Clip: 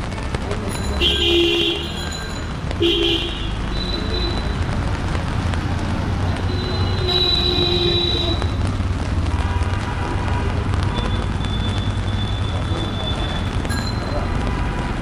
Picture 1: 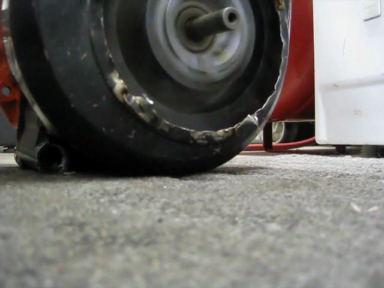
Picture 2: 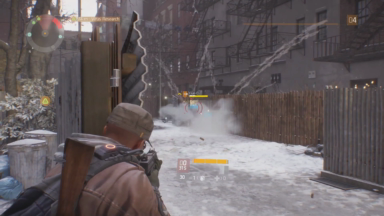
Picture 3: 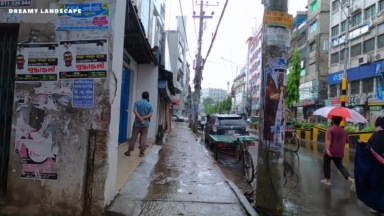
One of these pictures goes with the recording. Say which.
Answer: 3